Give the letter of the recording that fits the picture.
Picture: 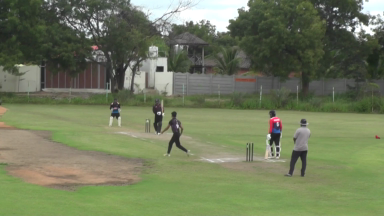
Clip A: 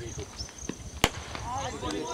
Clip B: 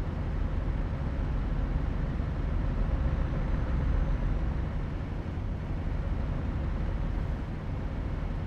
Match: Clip A